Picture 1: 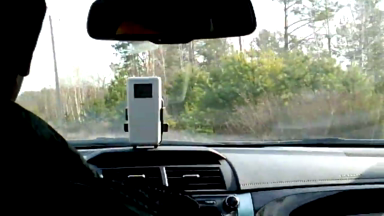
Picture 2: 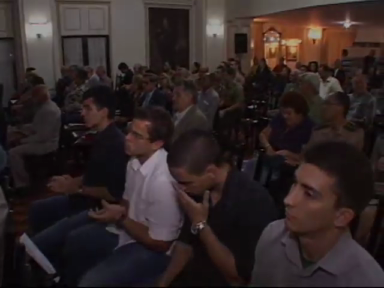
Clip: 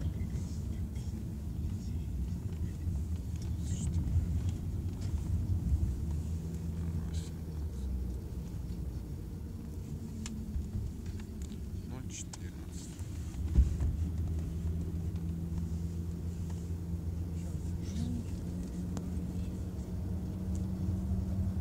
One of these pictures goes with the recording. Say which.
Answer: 1